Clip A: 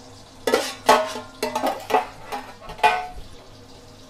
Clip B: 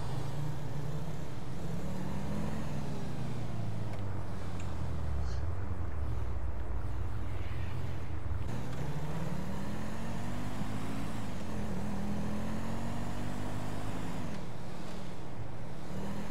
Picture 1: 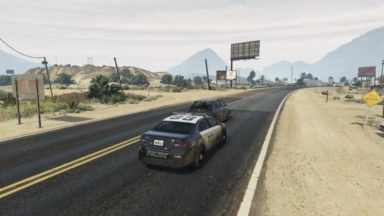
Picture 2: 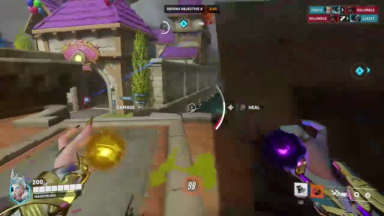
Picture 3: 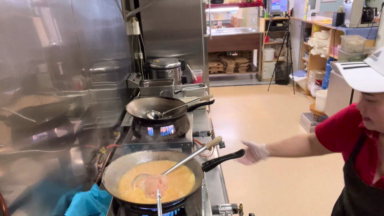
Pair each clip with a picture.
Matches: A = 3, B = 1